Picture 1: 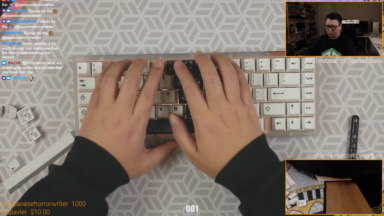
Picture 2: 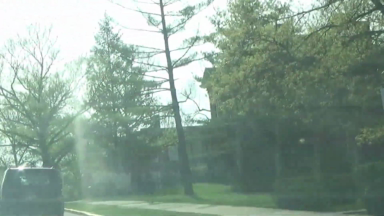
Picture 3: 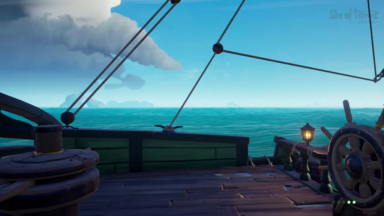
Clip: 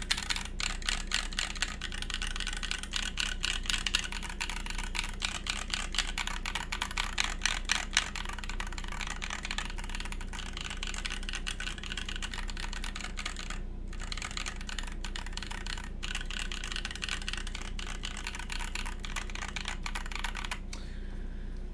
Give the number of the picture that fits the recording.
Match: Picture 1